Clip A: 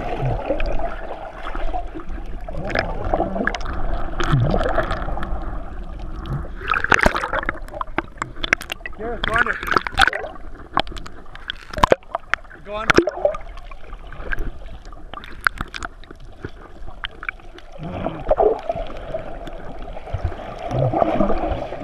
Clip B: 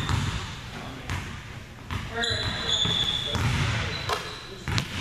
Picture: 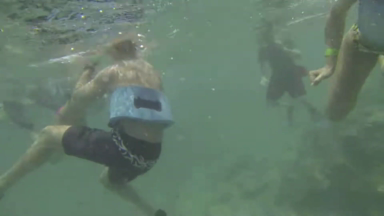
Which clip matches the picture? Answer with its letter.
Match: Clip A